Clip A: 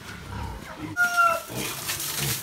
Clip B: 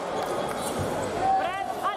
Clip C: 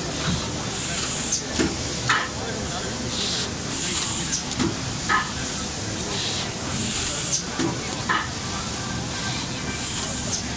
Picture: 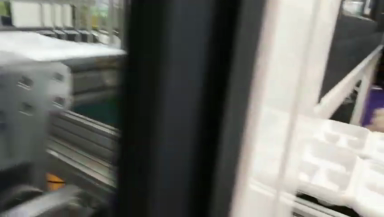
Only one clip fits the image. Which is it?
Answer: C